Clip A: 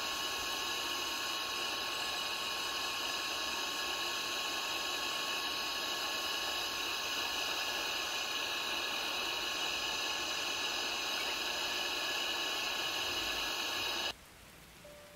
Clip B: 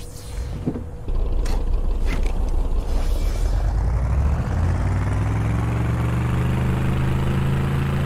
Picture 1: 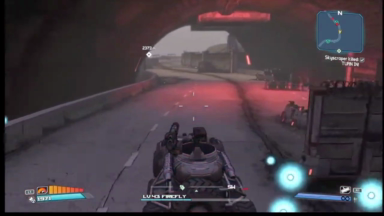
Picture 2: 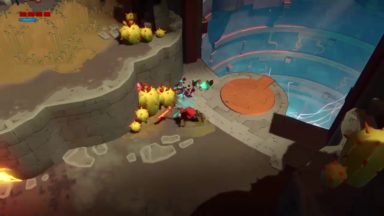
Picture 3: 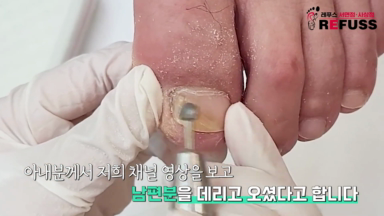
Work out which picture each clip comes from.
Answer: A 3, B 1